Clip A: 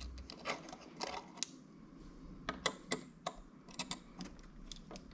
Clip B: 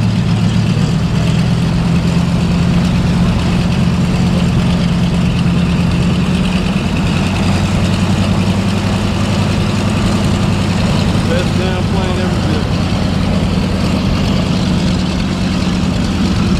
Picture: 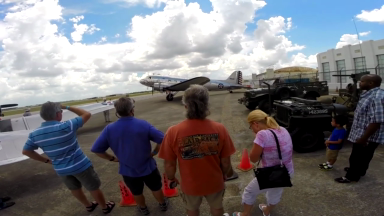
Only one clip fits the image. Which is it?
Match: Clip B